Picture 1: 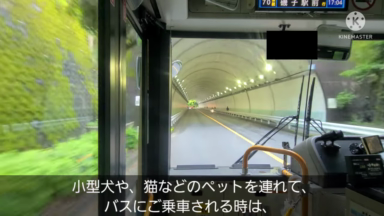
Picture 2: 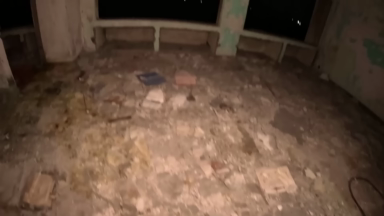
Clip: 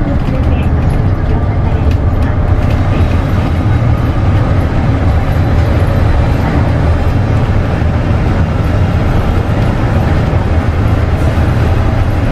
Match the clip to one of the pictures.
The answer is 1